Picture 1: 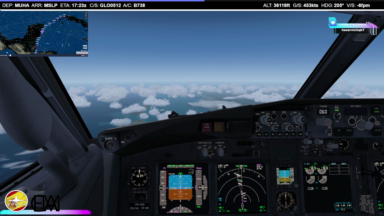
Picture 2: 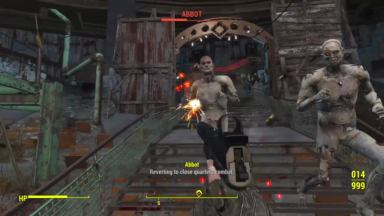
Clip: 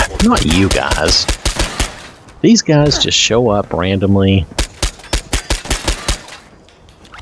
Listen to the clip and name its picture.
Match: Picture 2